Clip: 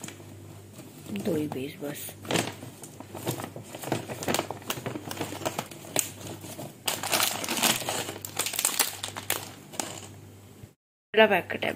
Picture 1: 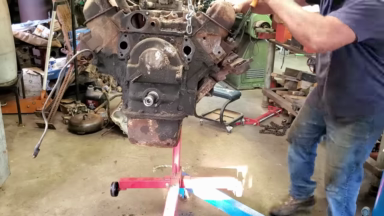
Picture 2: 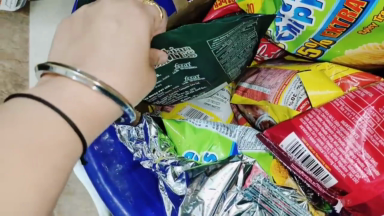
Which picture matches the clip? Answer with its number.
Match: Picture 2